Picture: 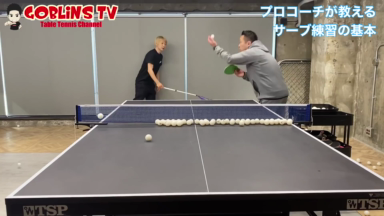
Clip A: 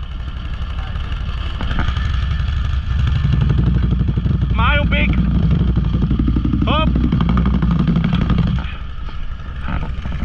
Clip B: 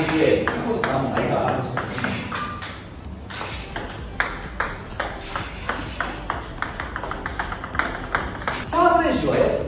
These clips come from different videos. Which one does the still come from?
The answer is B